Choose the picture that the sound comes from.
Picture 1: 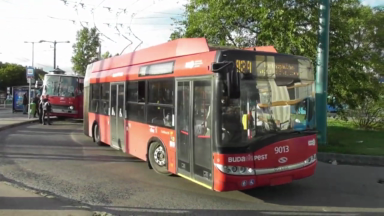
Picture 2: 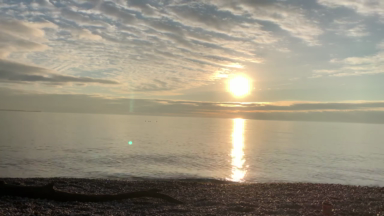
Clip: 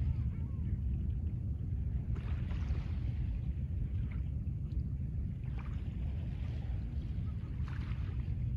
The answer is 2